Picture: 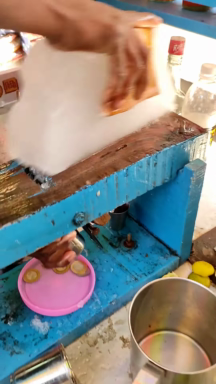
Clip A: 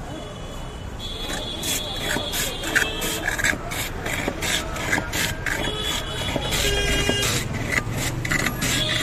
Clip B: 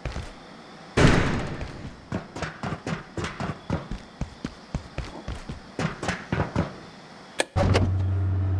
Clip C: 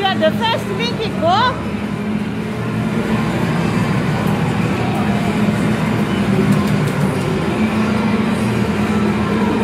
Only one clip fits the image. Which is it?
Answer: A